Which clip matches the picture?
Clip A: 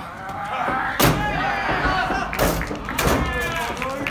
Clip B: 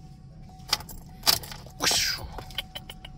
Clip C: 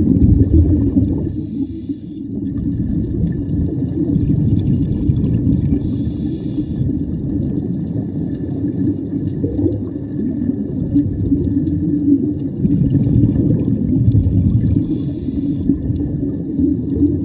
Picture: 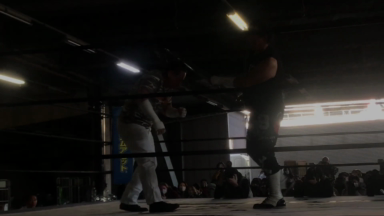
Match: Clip A